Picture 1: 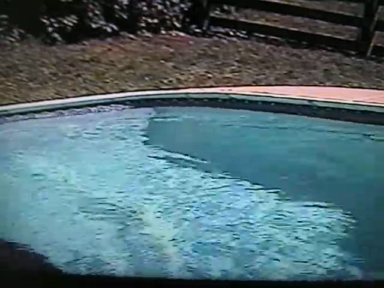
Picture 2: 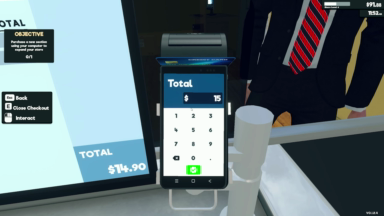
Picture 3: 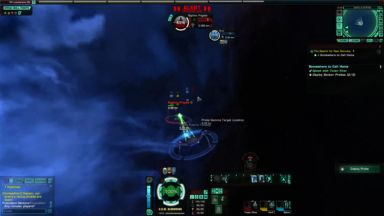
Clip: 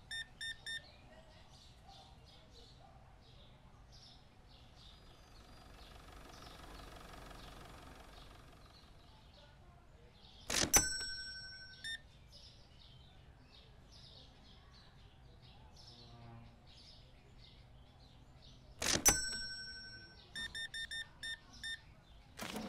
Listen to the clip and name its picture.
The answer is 2